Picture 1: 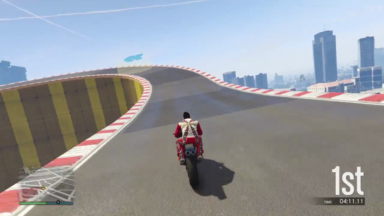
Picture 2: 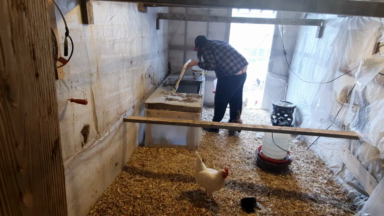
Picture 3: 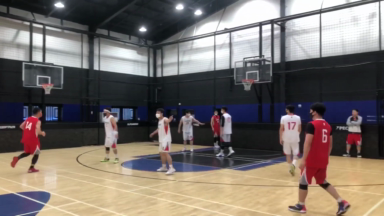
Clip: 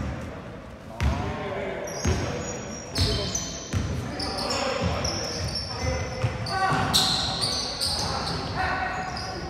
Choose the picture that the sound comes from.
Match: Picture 3